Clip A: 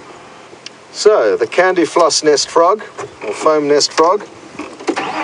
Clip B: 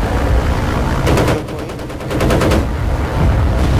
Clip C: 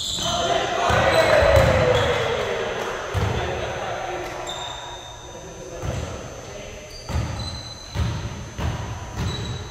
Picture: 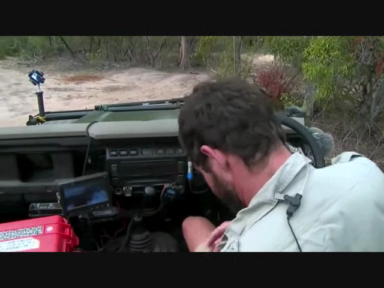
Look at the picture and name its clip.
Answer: A